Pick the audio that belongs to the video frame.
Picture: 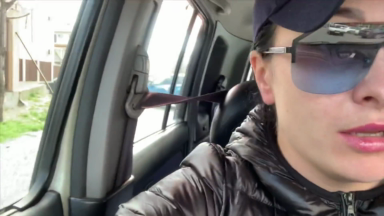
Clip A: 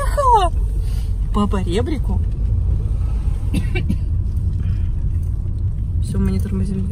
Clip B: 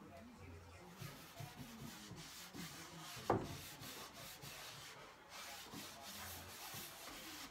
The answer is A